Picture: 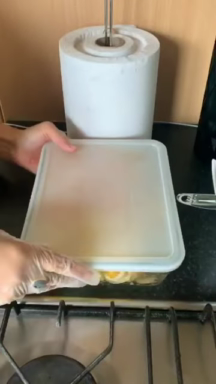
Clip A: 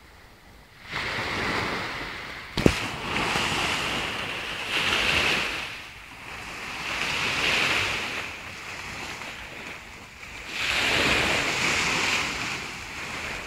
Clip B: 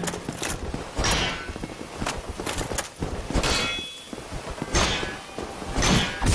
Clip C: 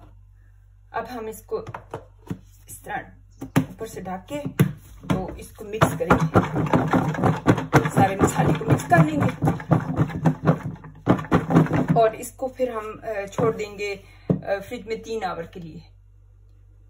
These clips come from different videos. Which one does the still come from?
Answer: C